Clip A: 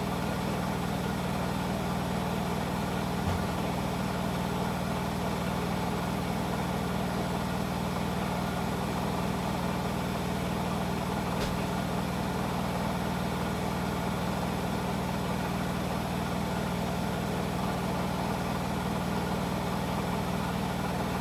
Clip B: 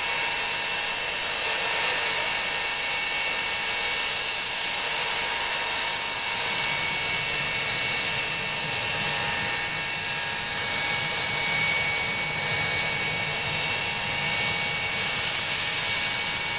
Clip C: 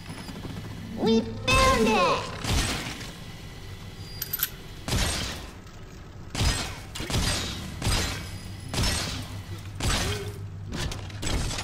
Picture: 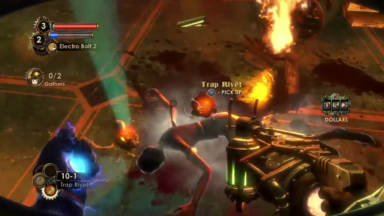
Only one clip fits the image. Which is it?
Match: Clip C